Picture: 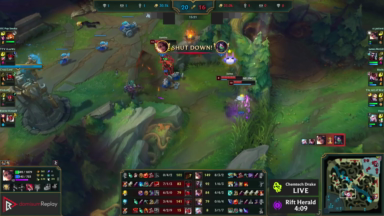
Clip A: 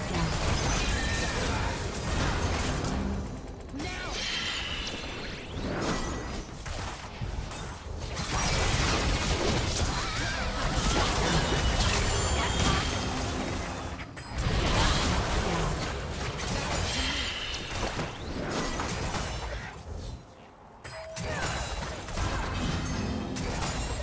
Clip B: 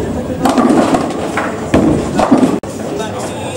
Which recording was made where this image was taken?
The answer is A